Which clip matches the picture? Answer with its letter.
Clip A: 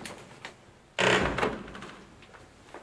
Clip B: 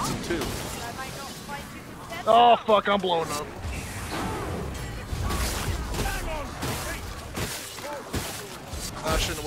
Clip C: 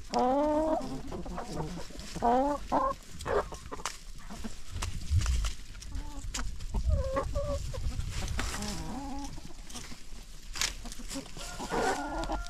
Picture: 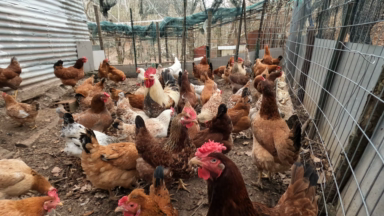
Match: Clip C